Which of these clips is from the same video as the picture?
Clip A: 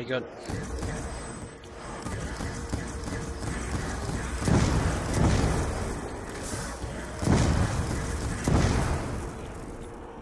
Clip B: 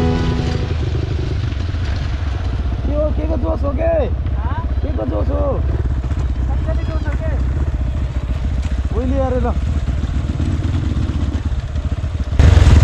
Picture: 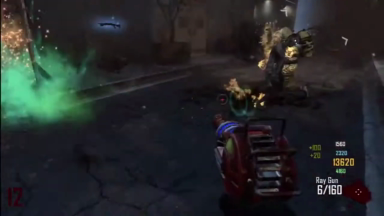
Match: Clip A